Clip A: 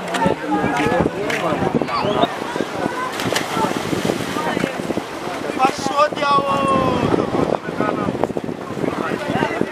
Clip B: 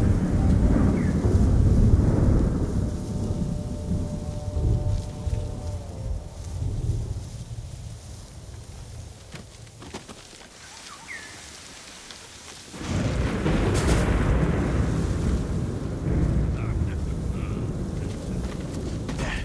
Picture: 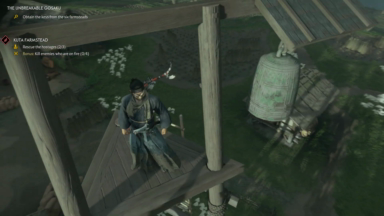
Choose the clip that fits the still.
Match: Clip B